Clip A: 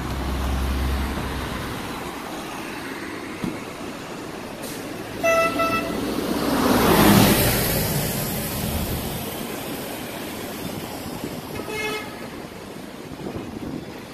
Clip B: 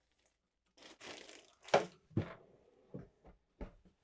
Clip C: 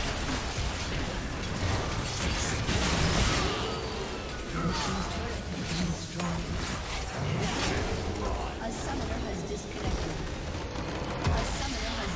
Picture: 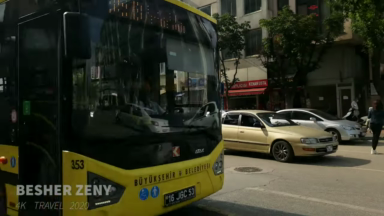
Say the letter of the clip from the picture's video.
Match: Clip A